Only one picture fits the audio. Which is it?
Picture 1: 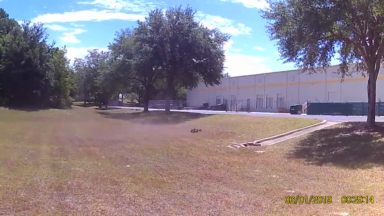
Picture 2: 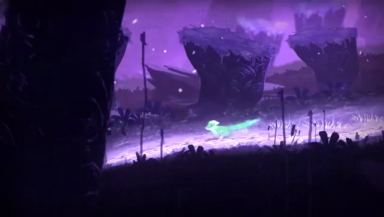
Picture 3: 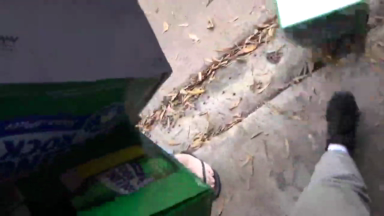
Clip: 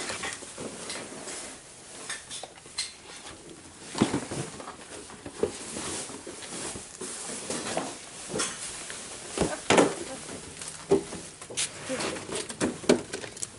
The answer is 3